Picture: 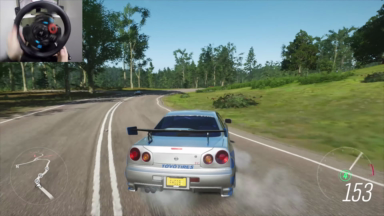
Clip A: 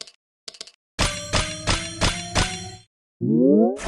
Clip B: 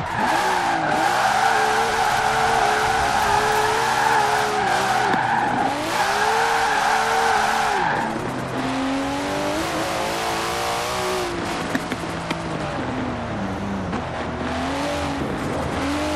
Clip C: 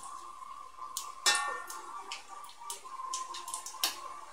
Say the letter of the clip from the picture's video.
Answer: B